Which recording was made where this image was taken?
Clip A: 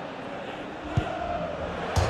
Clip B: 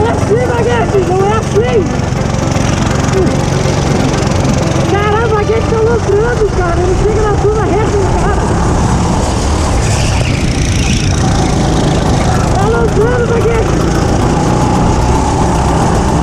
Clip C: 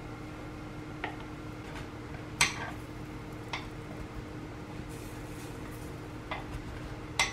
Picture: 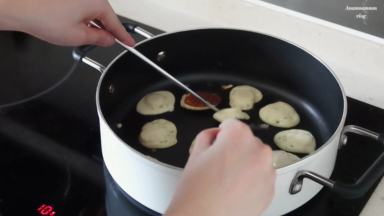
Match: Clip C